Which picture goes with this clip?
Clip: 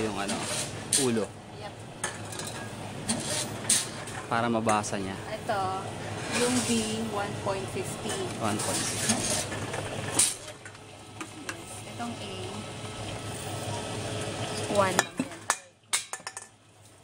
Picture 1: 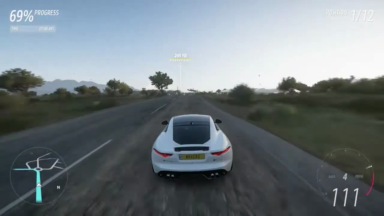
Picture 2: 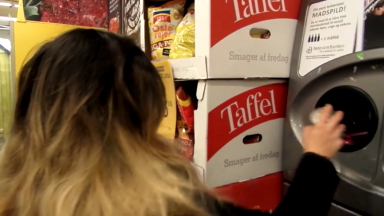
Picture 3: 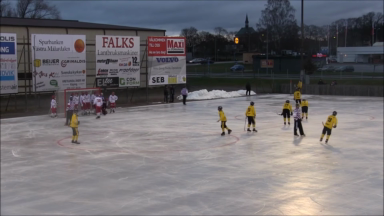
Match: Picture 2